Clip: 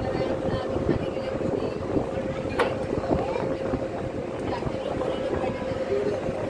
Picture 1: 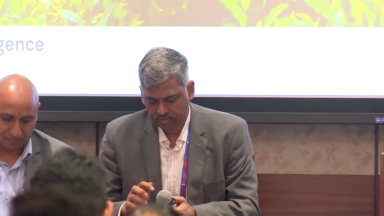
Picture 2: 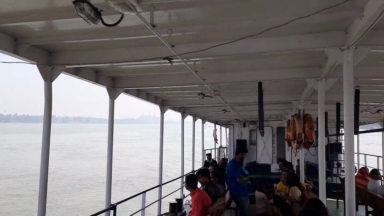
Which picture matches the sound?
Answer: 2